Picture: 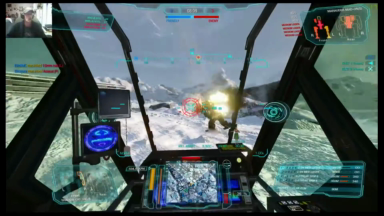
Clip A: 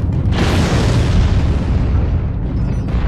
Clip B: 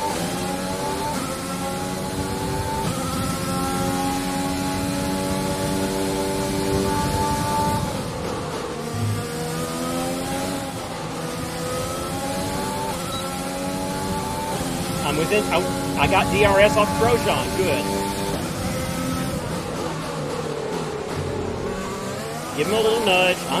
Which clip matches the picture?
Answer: A